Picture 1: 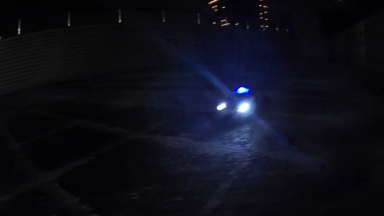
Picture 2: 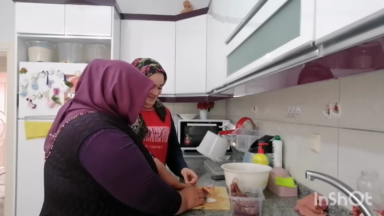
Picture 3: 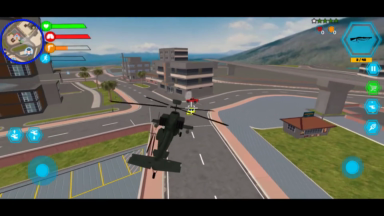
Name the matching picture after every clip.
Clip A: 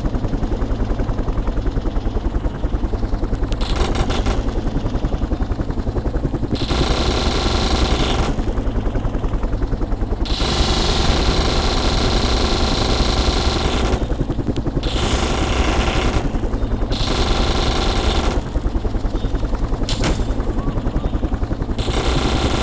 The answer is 3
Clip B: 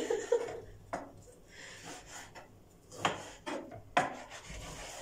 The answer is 2